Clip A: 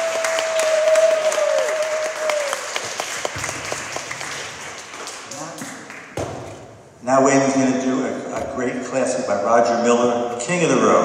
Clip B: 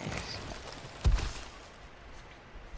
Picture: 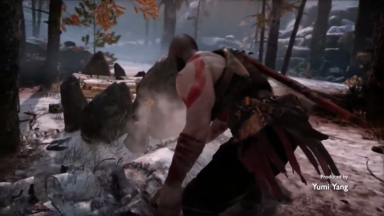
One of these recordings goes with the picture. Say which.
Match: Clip B